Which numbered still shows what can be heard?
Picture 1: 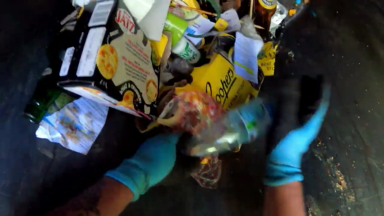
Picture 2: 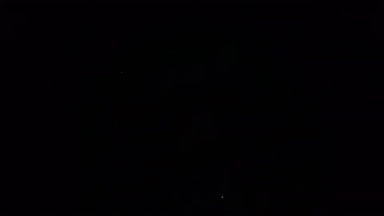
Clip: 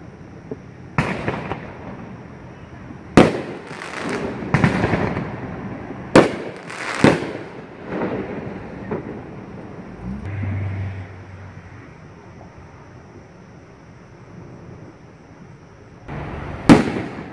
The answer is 2